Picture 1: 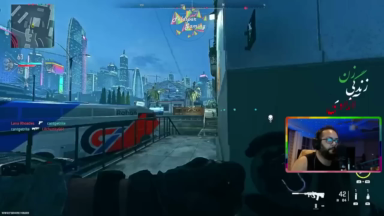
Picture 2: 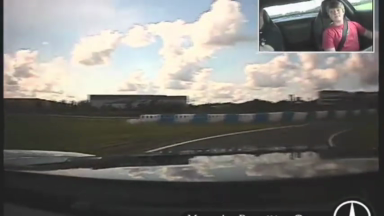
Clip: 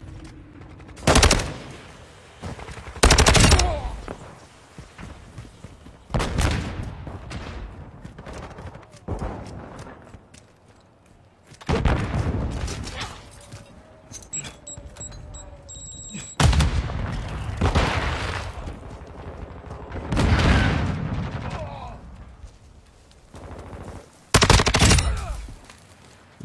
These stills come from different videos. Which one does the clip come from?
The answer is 1